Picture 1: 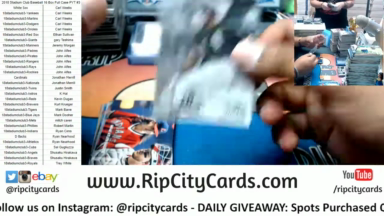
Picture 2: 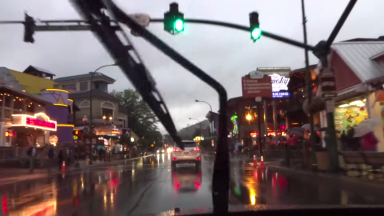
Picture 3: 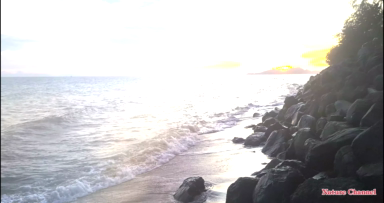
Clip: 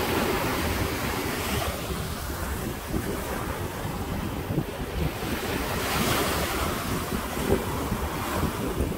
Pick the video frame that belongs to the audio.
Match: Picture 3